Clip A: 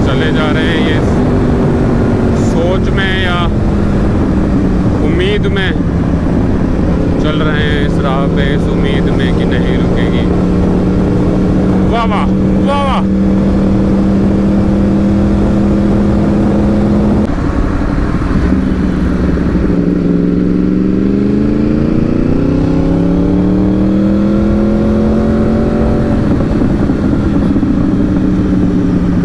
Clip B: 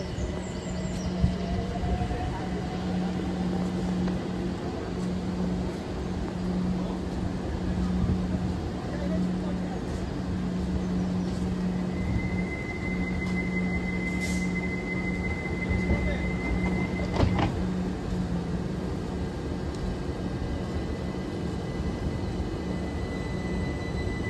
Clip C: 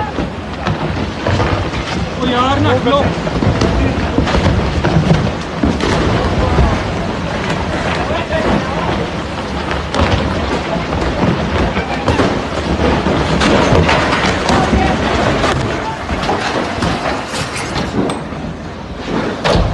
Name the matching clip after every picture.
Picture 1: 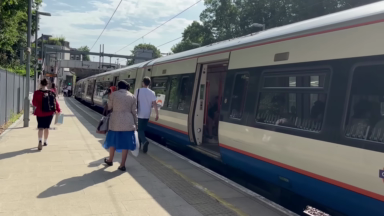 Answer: B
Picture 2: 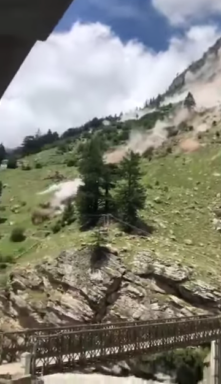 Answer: C